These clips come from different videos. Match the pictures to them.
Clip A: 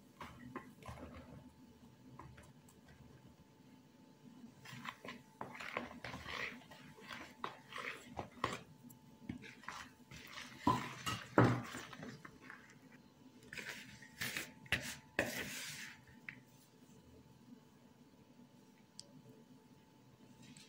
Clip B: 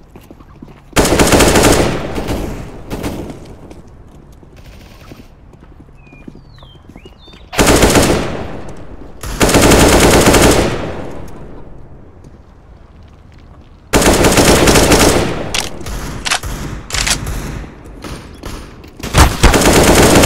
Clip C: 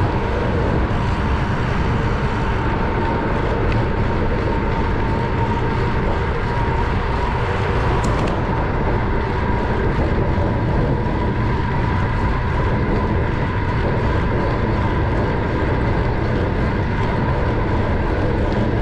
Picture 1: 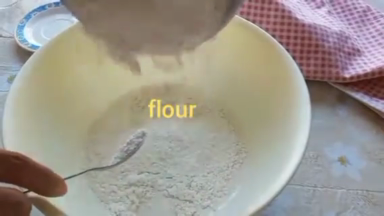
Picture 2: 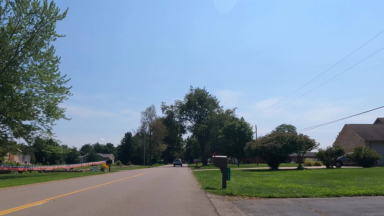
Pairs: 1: A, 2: C